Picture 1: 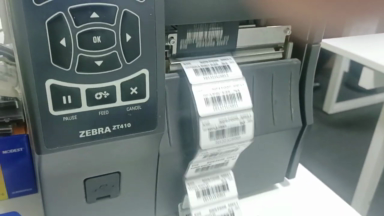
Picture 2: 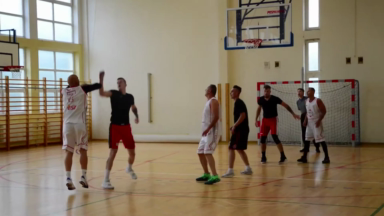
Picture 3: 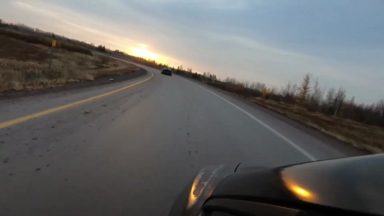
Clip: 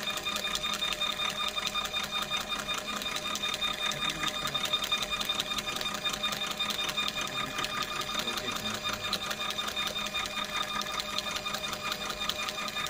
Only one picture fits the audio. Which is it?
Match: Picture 1